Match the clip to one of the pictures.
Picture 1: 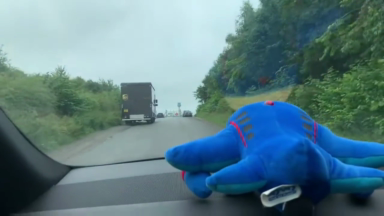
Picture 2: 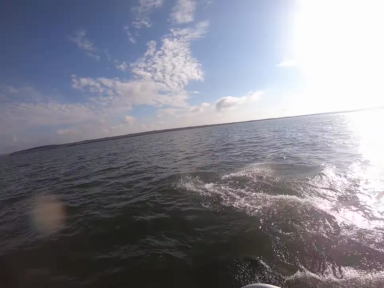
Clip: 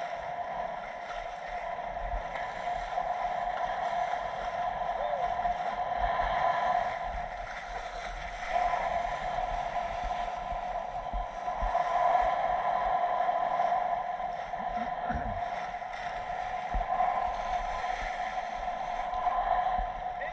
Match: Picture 2